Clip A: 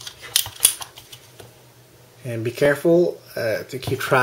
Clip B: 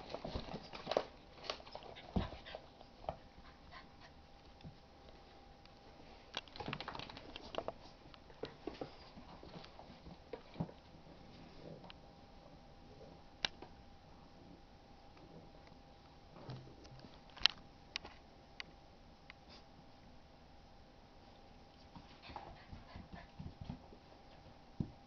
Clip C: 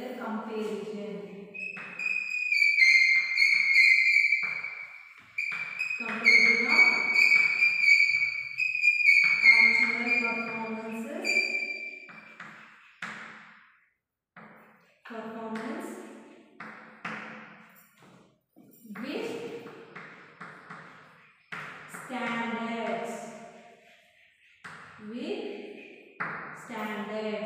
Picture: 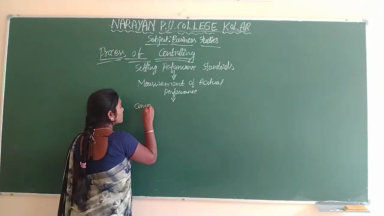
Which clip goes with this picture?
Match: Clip C